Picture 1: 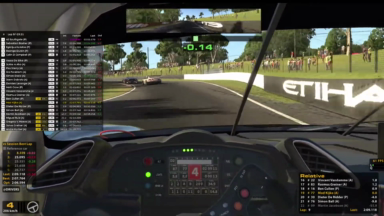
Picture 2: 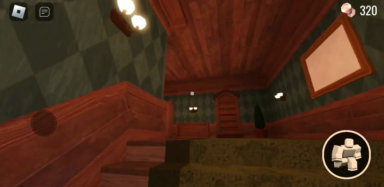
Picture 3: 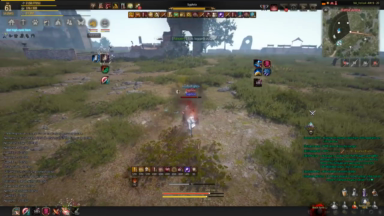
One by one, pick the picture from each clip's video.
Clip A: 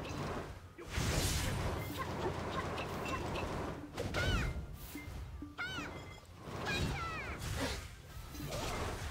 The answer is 3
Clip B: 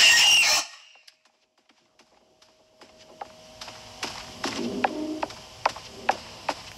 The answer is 2